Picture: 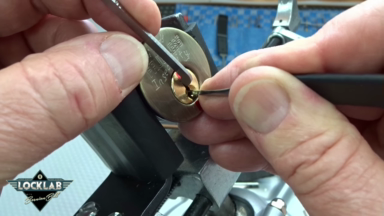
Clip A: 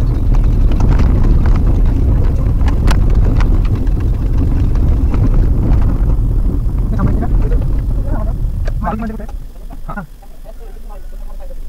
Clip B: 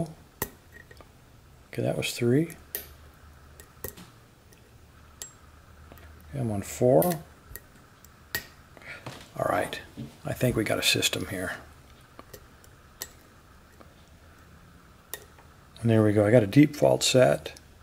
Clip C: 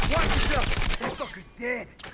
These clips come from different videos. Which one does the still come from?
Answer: B